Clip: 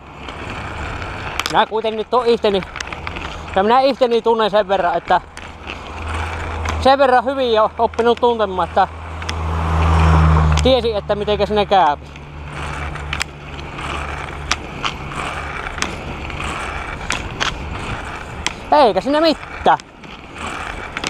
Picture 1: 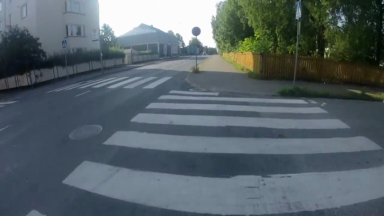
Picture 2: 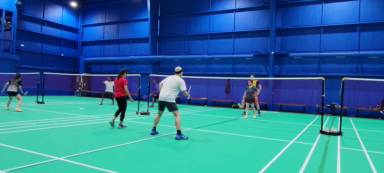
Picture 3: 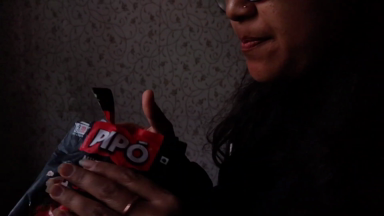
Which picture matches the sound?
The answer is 1